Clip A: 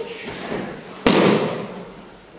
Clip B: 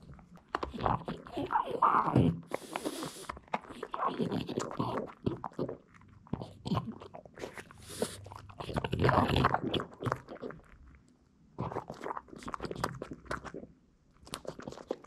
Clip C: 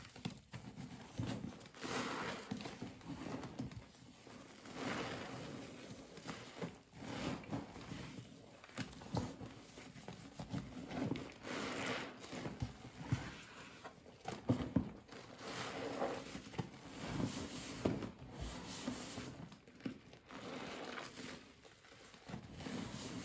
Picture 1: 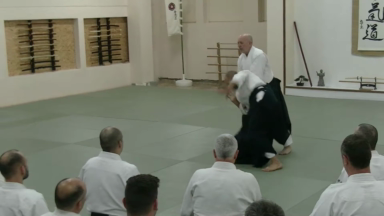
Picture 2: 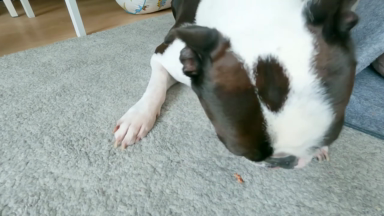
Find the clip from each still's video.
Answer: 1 A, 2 B